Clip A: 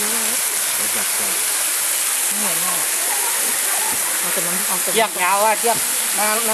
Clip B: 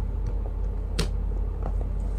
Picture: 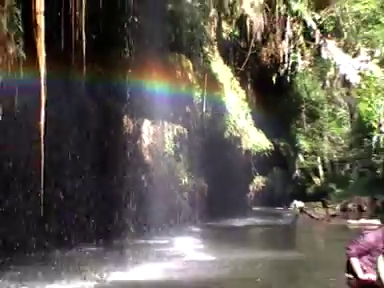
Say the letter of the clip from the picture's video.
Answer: A